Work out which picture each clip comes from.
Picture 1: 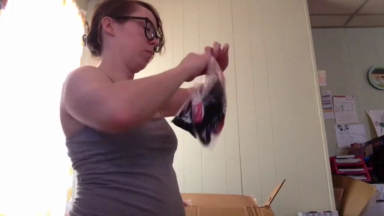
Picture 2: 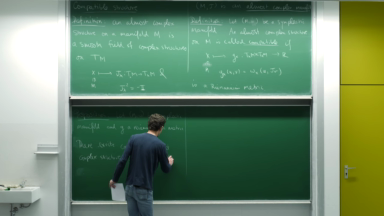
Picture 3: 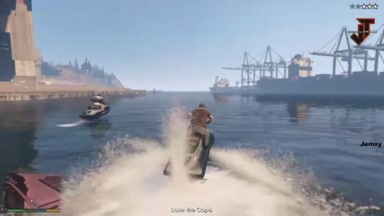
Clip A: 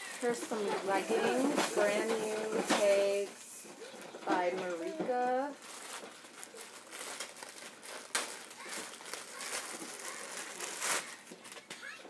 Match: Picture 1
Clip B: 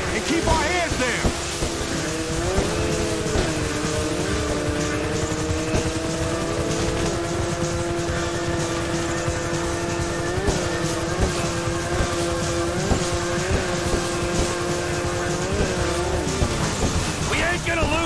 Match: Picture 3